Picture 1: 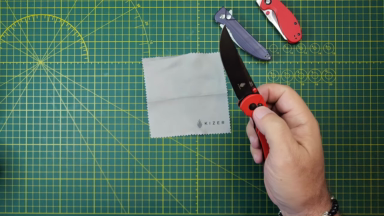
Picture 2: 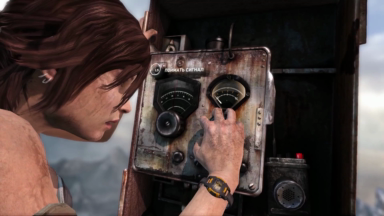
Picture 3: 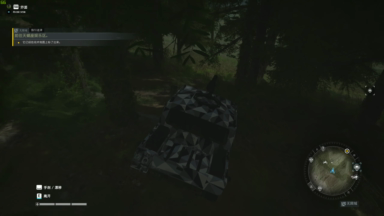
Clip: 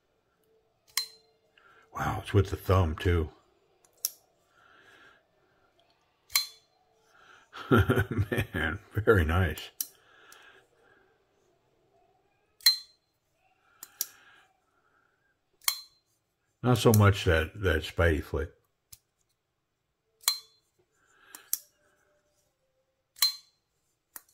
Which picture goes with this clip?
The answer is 1